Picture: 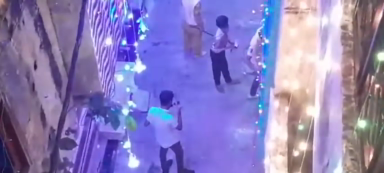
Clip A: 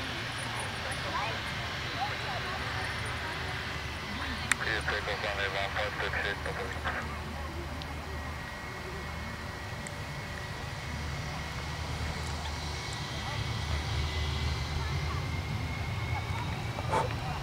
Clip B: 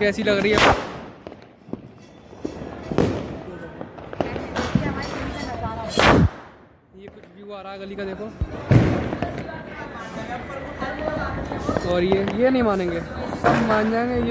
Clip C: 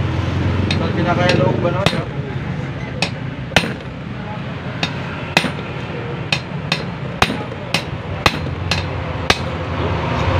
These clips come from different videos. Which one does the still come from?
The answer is B